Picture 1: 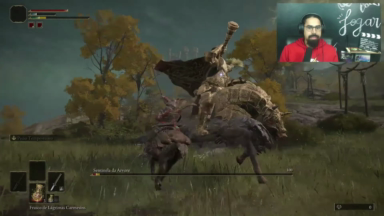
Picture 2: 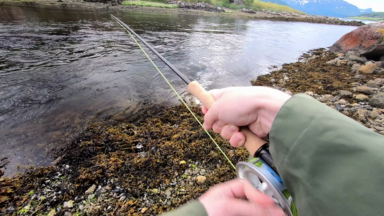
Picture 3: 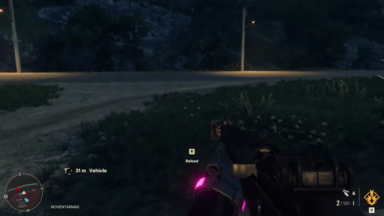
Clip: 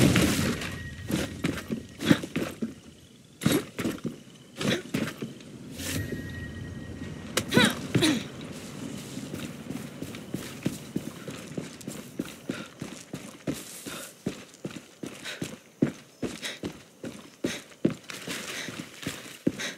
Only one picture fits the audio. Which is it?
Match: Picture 3